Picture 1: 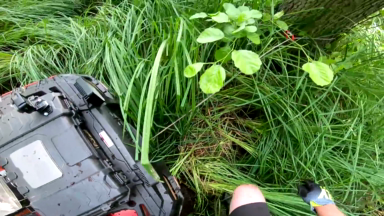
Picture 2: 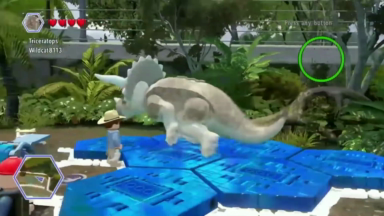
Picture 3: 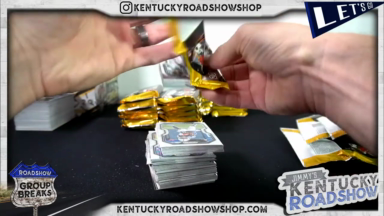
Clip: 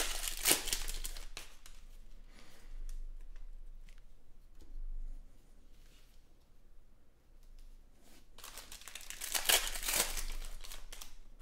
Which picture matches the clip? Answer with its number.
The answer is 3